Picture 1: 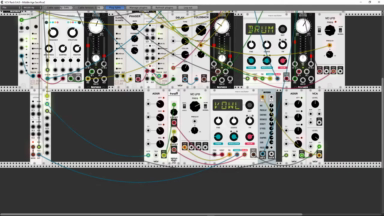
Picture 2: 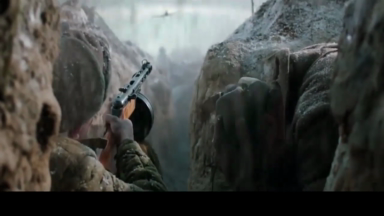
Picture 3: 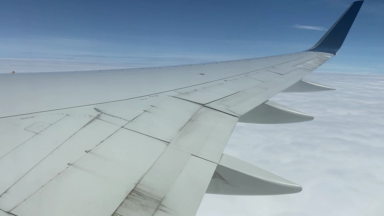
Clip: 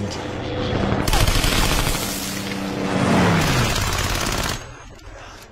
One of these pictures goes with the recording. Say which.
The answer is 2